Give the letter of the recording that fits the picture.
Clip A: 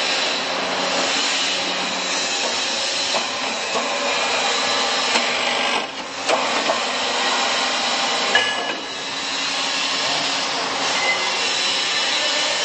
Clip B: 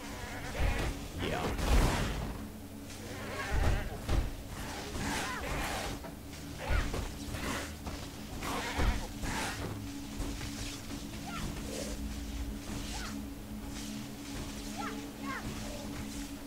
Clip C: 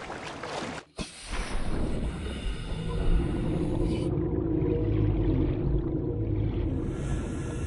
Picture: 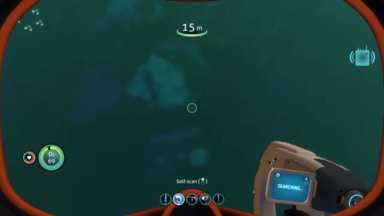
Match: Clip C